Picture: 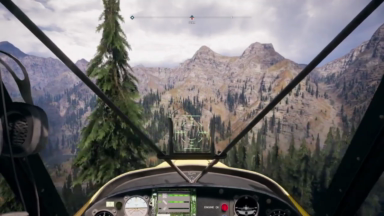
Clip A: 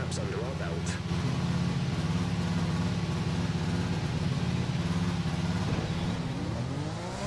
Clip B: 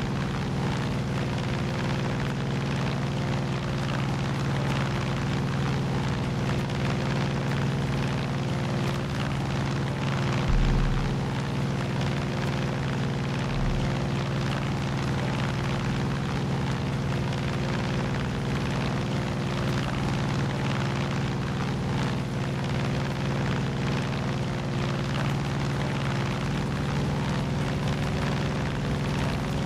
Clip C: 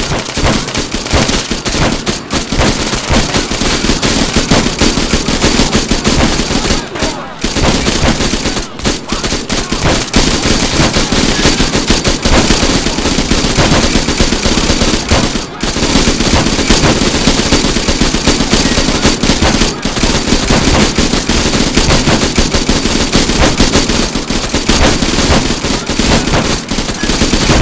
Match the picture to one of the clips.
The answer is B